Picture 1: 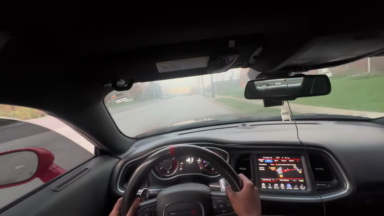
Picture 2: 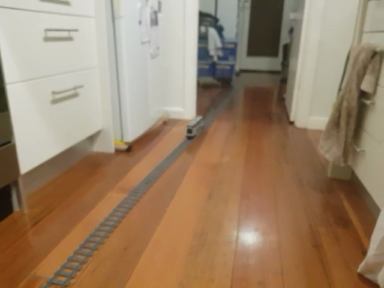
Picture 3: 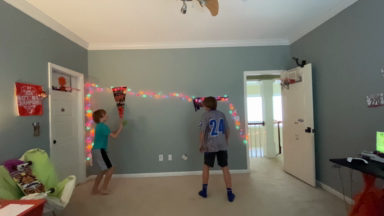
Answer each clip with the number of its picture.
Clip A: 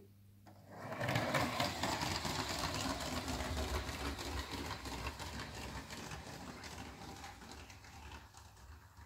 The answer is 2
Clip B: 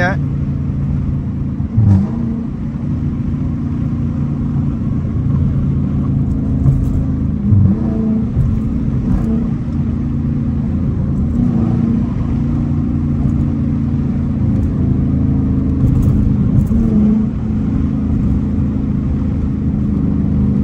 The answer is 1